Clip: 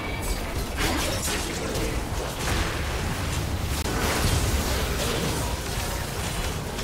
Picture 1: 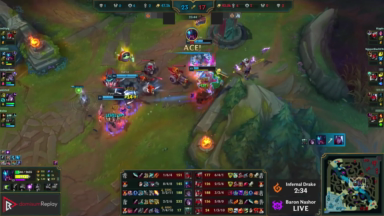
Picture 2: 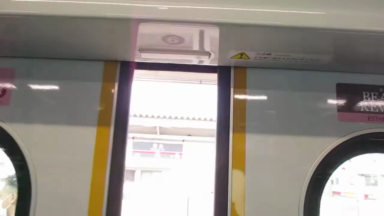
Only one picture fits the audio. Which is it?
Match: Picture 1